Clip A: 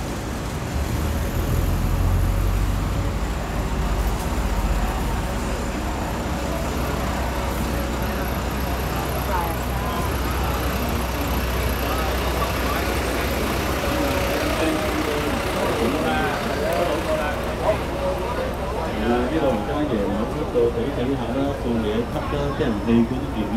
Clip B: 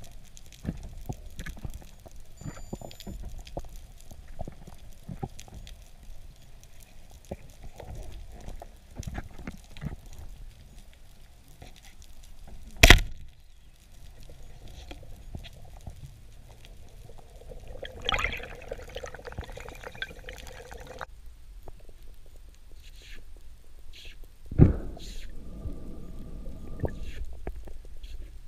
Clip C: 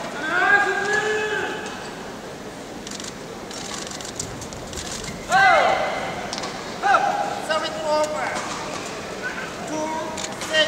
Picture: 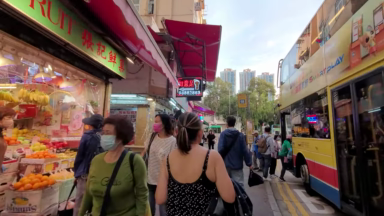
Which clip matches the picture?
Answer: A